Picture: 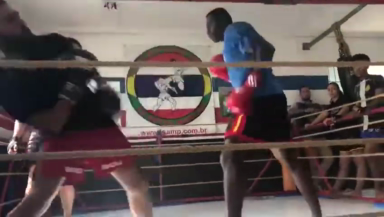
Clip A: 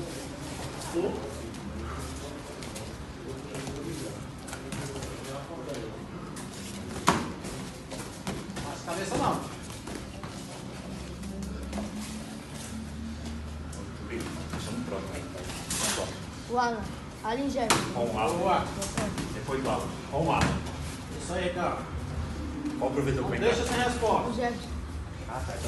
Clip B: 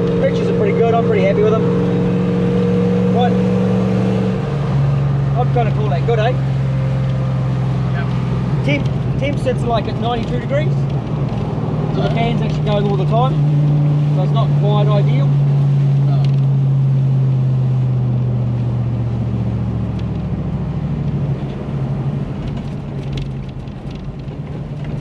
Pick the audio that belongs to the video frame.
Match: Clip A